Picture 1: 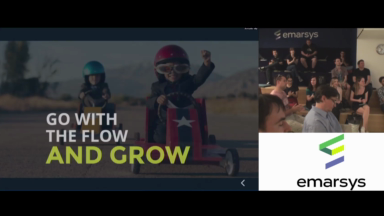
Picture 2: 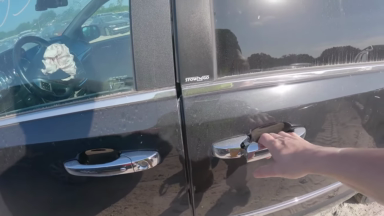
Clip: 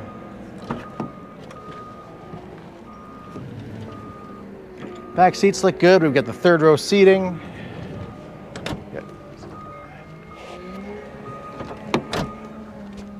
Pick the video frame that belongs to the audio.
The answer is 2